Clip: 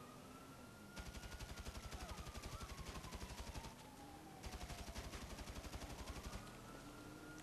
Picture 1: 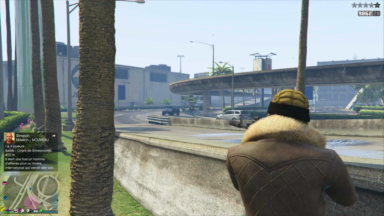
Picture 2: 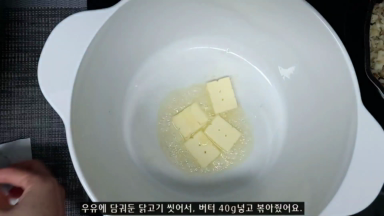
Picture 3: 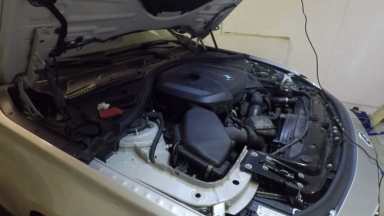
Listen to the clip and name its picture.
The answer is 1